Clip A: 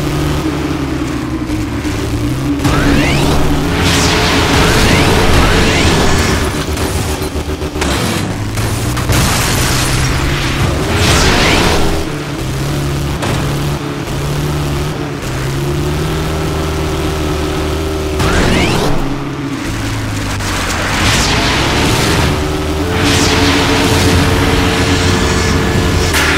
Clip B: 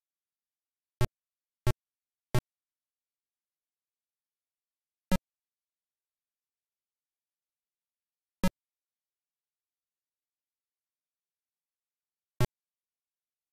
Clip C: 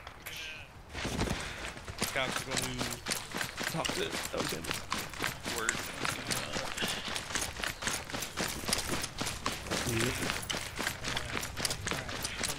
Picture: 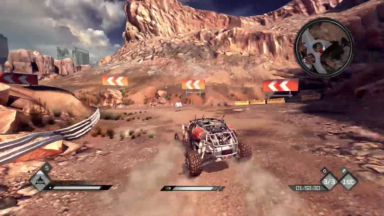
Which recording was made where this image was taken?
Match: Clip A